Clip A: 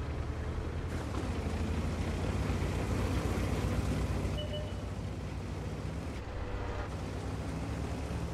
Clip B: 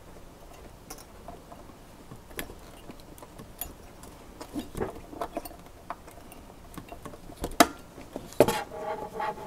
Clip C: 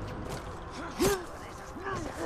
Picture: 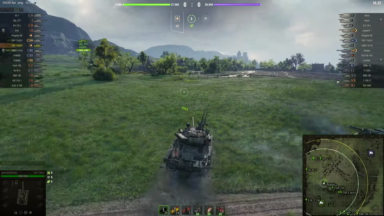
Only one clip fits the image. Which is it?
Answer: A